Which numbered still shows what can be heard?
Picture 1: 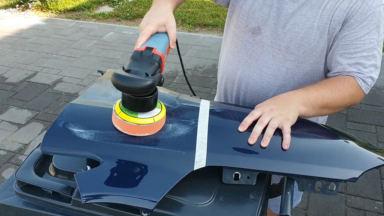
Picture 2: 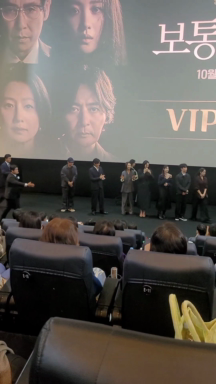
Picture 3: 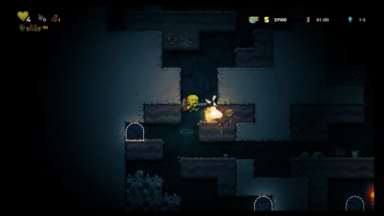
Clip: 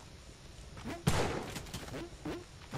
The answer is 3